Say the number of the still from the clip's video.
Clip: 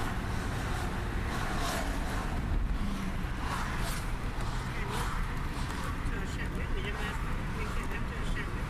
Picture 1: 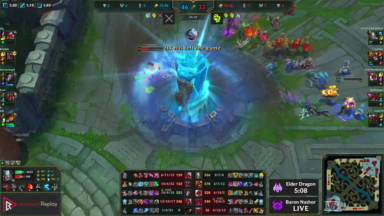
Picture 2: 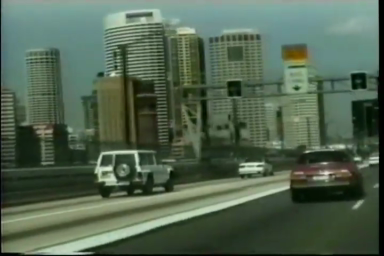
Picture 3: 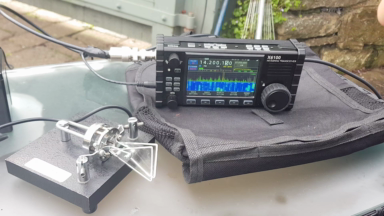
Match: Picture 2